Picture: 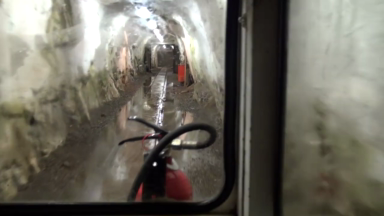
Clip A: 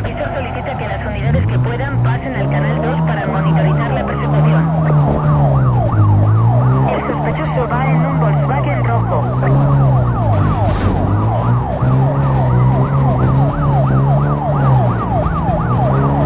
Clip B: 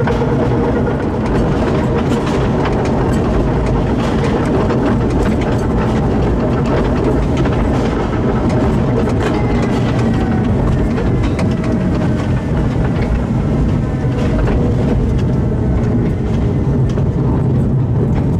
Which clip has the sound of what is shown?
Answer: B